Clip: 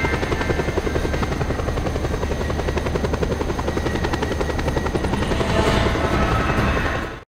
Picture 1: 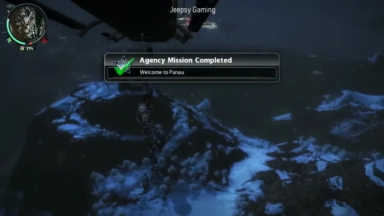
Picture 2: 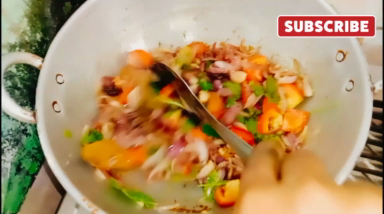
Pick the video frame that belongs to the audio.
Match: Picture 1